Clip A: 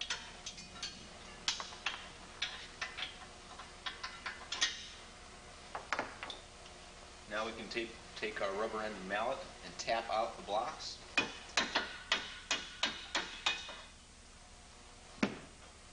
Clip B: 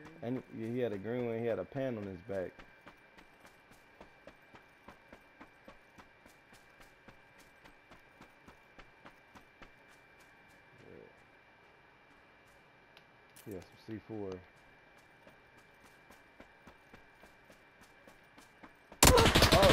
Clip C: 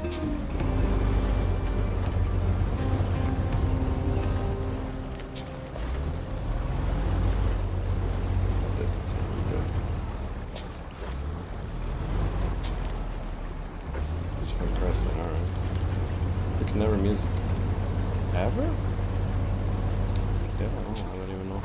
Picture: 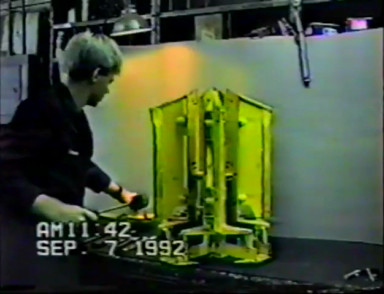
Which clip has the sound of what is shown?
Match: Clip A